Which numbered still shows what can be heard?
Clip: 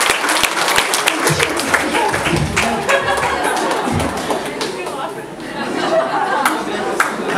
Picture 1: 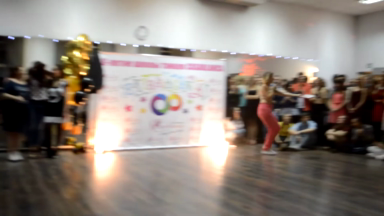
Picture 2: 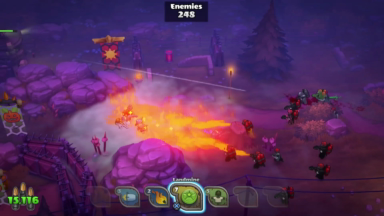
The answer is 1